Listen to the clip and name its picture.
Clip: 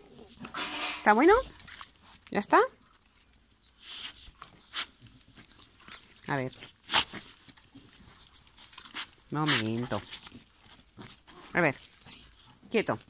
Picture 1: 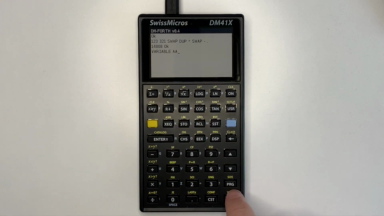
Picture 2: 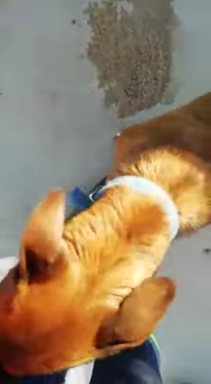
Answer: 2